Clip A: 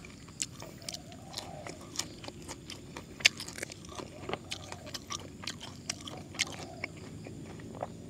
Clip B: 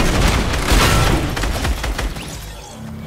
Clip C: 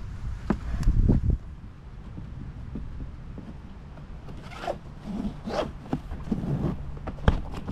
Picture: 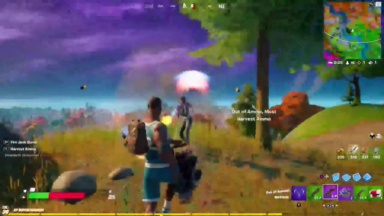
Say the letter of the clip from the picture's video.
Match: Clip B